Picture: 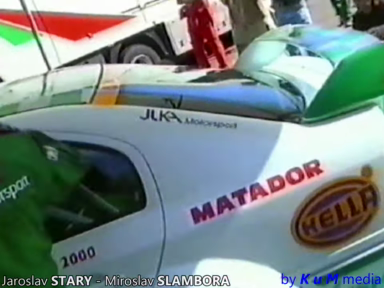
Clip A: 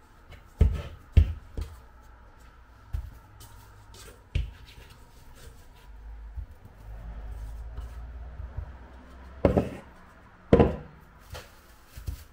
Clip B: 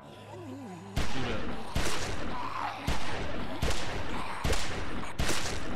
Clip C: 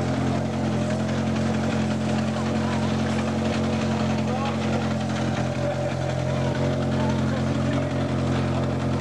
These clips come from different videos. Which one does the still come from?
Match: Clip C